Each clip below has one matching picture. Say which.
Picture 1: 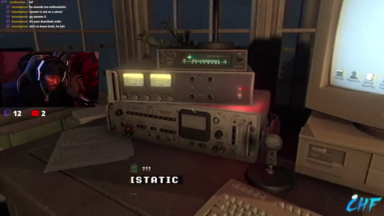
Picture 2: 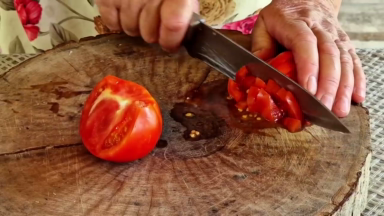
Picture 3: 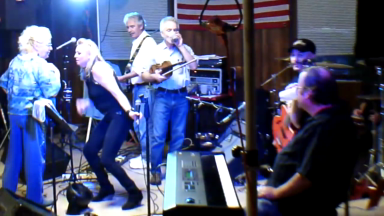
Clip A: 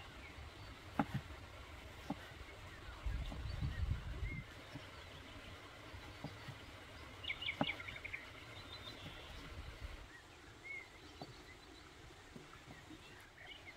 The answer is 2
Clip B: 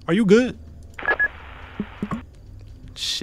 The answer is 1